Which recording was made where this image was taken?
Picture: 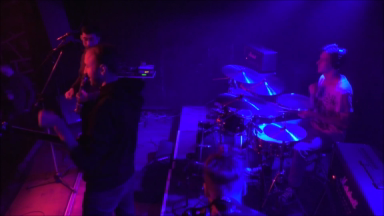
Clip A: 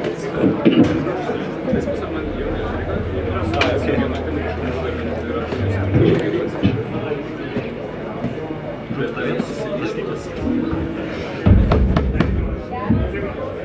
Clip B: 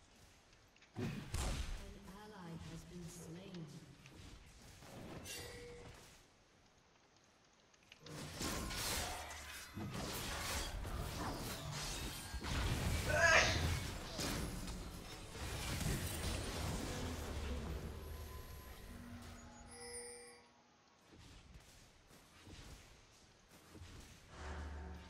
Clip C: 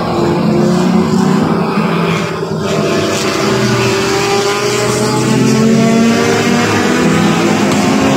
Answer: A